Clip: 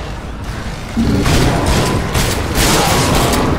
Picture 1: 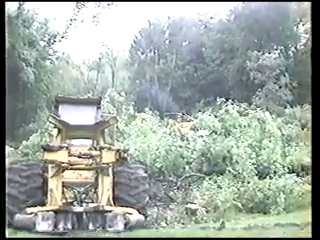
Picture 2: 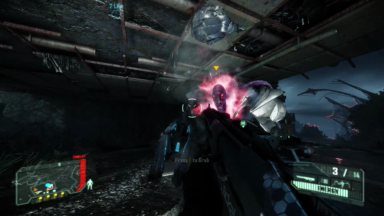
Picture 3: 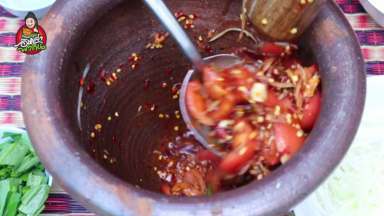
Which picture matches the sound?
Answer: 2